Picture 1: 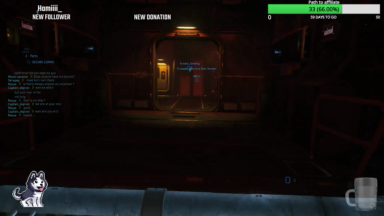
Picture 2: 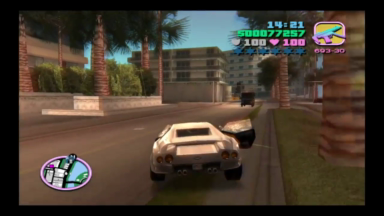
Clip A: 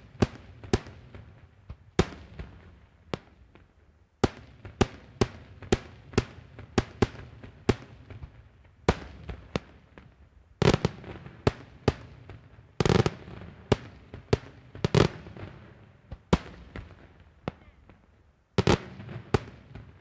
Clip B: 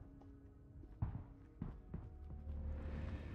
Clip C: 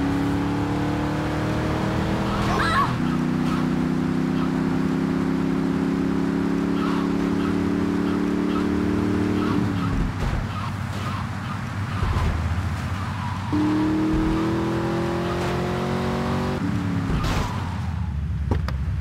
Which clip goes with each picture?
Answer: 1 B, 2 C